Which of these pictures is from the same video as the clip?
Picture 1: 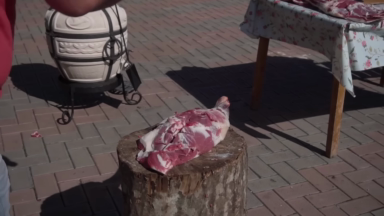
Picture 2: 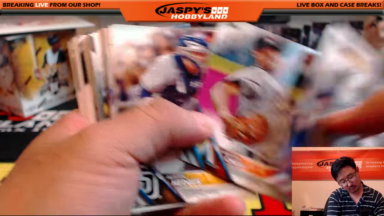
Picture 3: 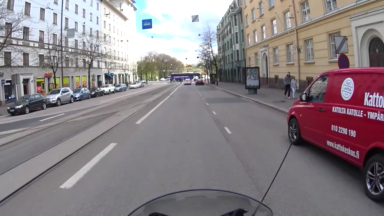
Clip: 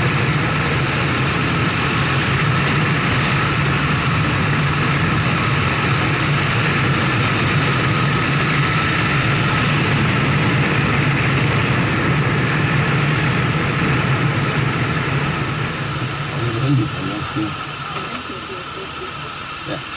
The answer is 3